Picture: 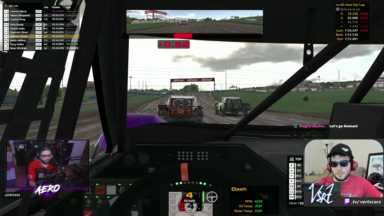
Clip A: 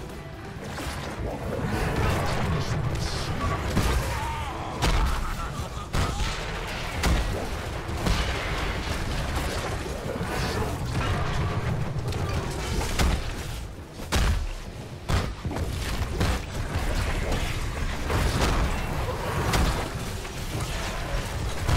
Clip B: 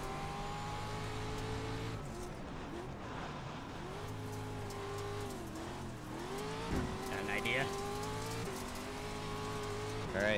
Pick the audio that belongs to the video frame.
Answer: B